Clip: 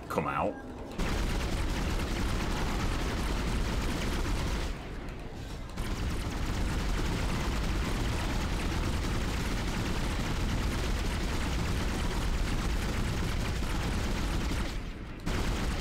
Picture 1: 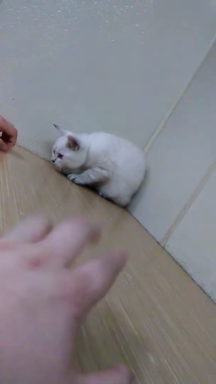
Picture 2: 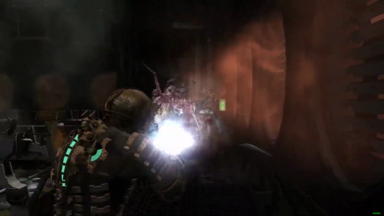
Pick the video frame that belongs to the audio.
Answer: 2